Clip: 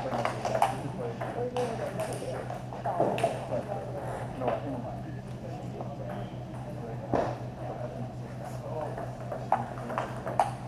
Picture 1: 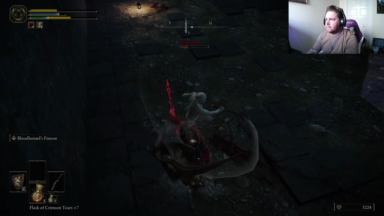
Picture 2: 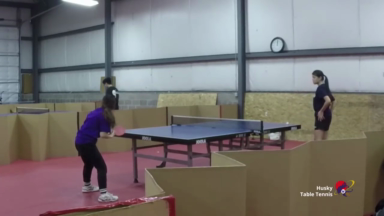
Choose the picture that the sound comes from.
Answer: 2